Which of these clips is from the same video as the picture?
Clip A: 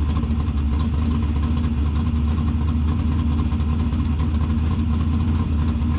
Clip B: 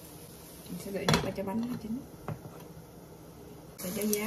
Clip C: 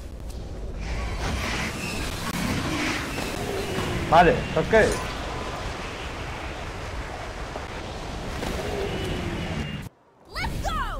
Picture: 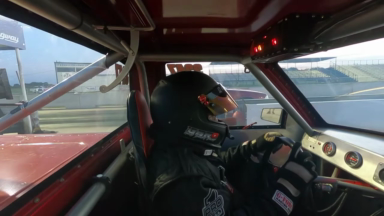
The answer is A